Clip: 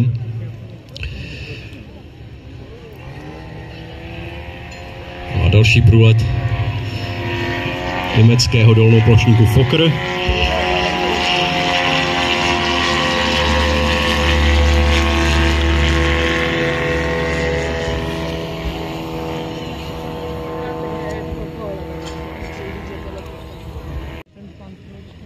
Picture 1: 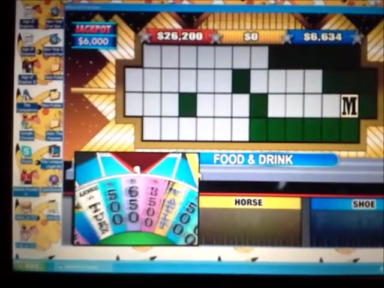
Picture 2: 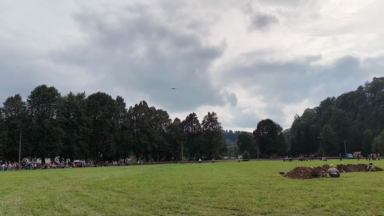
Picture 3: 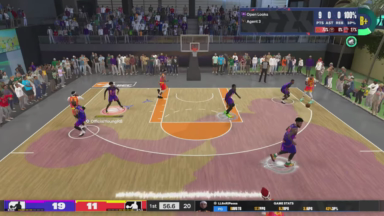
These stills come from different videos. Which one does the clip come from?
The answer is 2